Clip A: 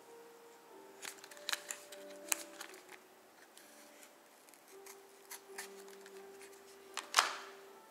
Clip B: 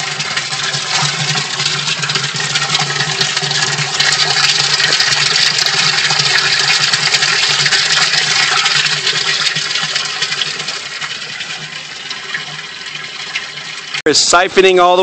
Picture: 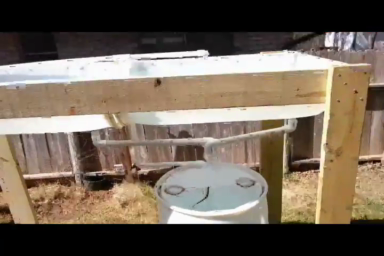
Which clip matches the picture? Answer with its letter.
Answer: B